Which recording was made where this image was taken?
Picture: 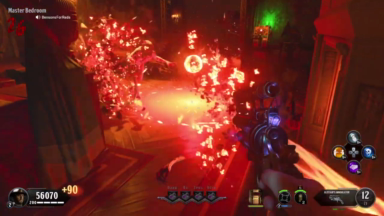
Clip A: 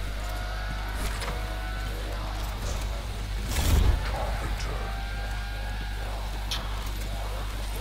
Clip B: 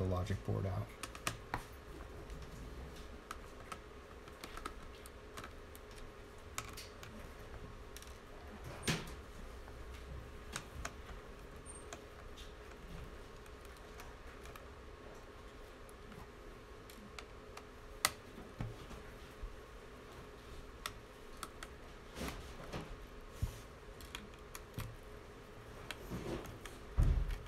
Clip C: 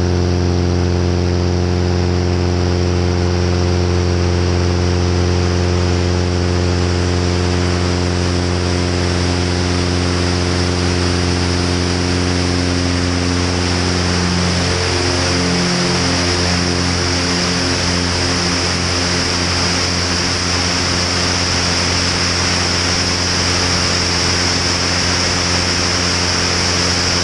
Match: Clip A